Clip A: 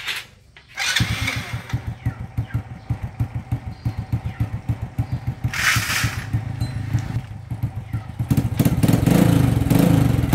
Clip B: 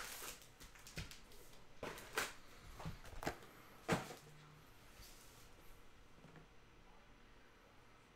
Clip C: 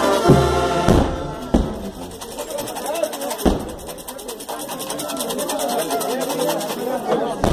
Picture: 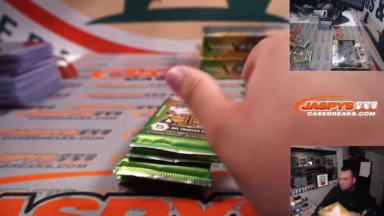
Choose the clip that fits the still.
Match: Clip B